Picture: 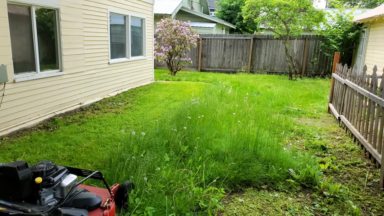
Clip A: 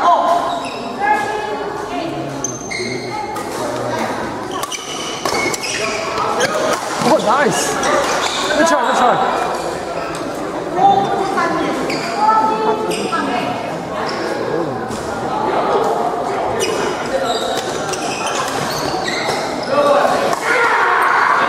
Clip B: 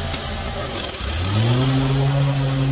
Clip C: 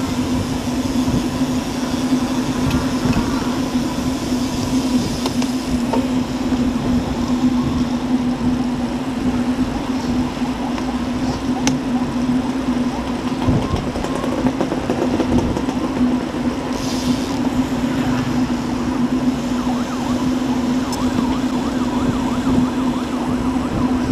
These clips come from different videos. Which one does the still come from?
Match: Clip B